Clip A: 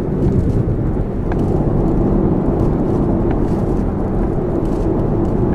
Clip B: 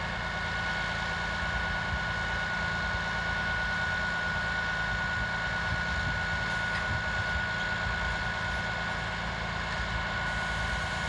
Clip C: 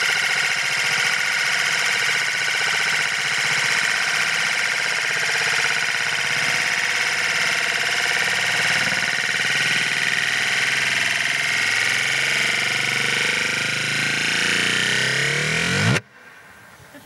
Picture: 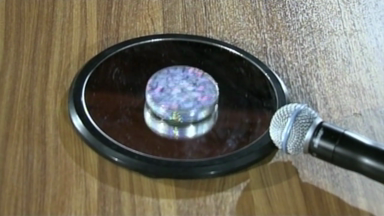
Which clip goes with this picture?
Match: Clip C